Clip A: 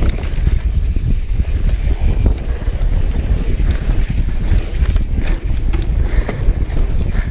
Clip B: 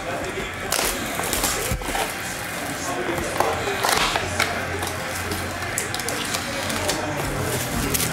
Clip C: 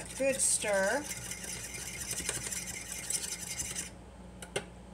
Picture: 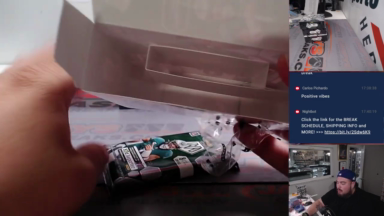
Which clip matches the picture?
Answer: B